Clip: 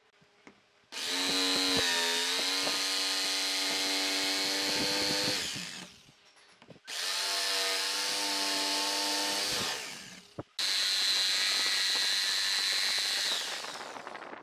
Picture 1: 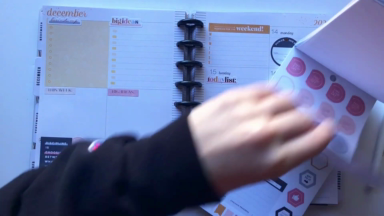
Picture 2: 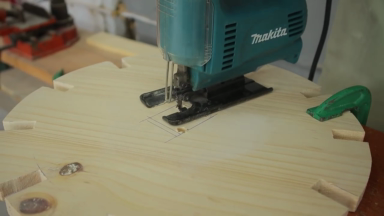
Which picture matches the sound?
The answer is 2